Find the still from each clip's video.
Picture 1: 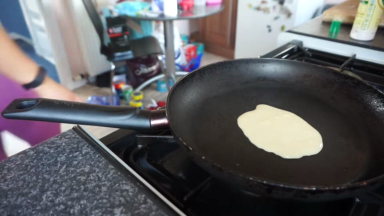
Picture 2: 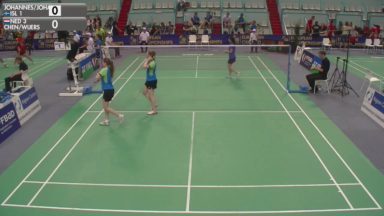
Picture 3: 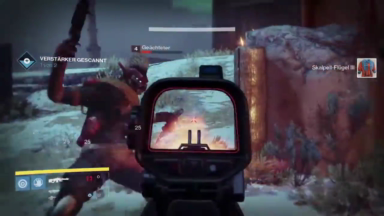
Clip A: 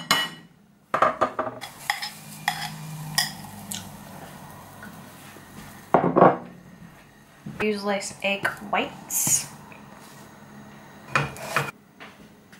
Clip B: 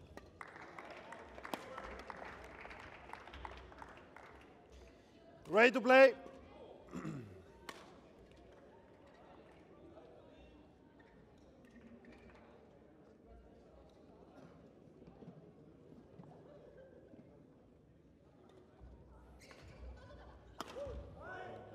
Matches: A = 1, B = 2